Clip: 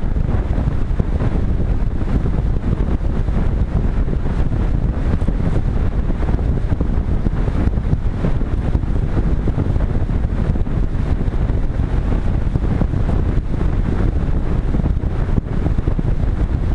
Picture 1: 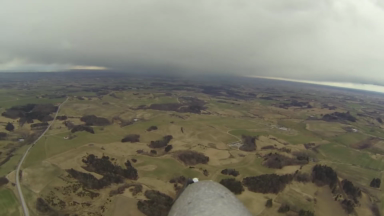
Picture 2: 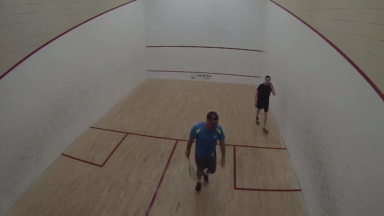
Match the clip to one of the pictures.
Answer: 1